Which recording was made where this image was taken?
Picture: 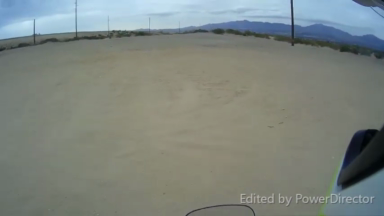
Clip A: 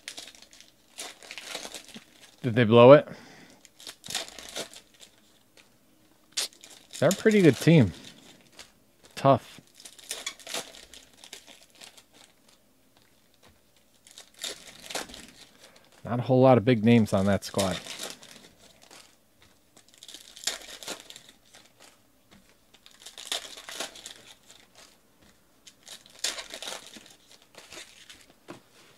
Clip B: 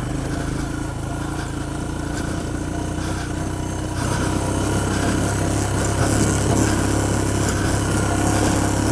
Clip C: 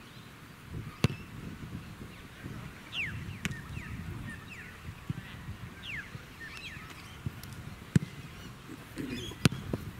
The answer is B